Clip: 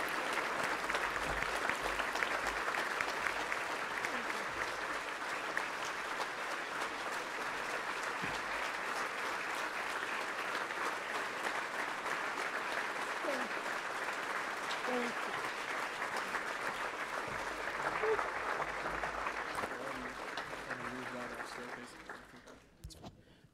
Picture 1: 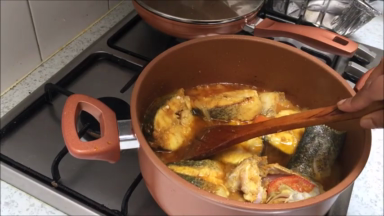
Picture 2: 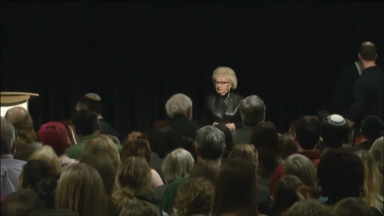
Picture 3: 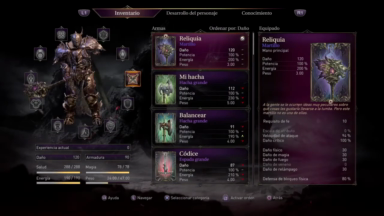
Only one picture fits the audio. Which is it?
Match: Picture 2